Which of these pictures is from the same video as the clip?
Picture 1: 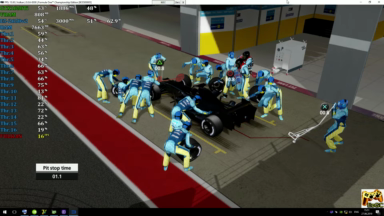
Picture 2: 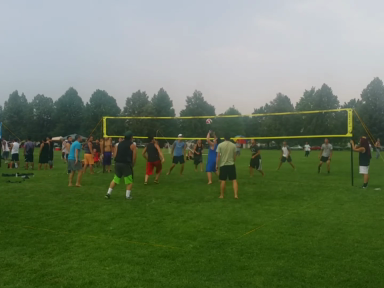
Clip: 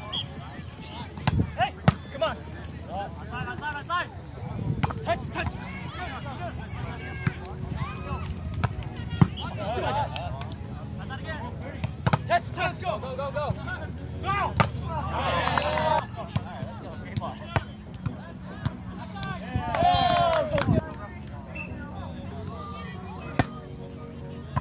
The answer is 2